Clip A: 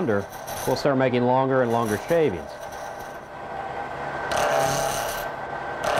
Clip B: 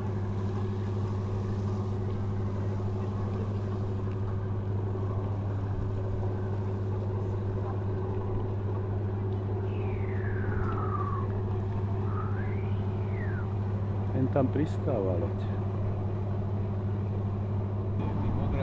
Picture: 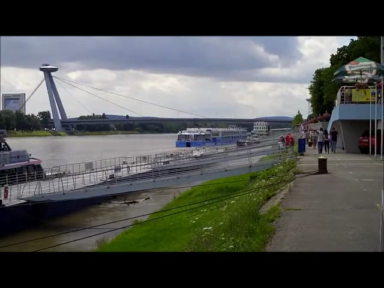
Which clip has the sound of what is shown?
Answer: B